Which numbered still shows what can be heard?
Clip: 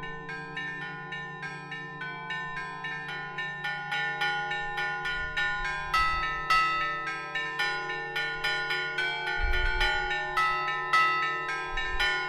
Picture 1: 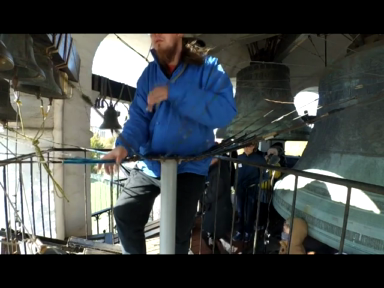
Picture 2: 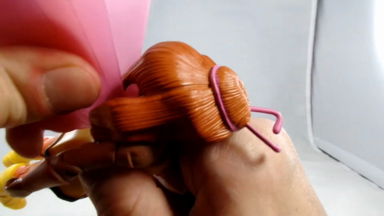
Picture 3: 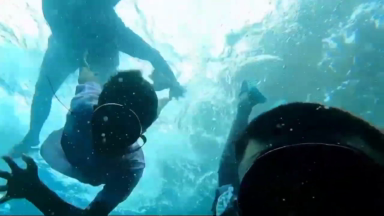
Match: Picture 1